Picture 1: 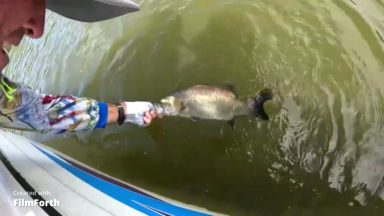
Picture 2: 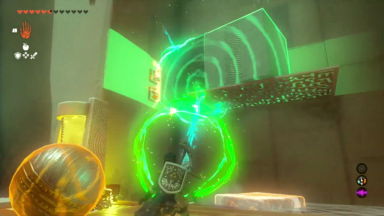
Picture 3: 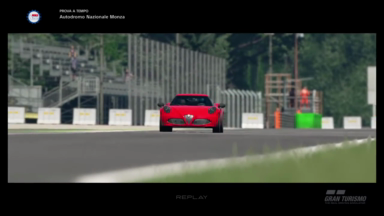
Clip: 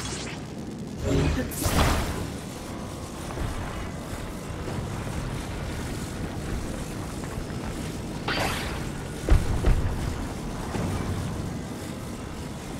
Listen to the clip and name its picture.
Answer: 2